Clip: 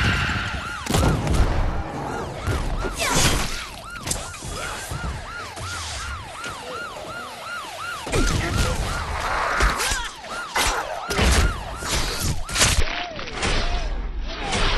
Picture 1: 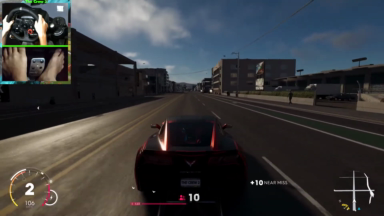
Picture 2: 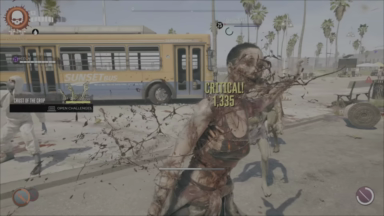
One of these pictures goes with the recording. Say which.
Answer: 2